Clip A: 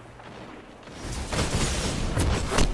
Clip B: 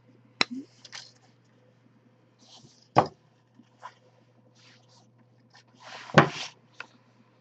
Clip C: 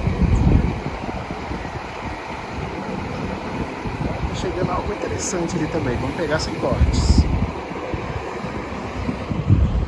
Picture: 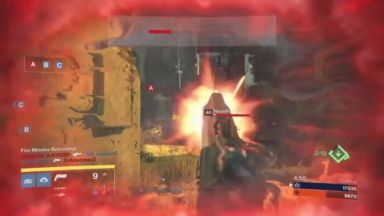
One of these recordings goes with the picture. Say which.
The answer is A